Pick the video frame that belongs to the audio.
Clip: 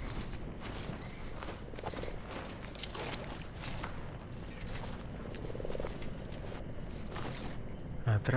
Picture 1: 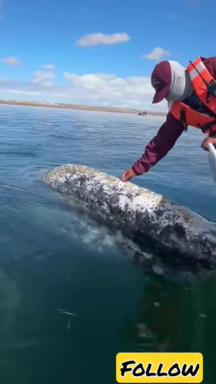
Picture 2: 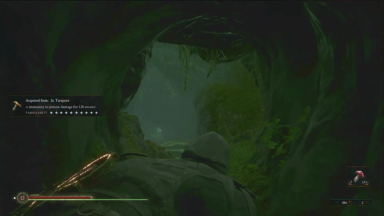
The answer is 2